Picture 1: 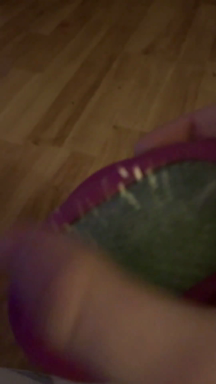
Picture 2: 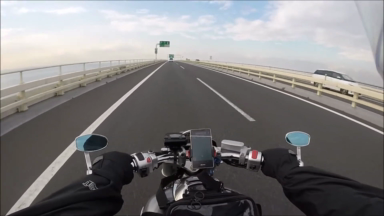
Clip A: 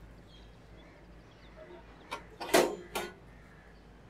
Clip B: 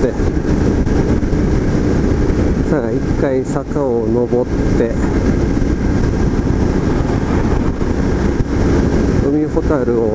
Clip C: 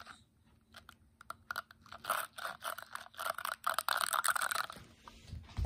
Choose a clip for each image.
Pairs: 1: C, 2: B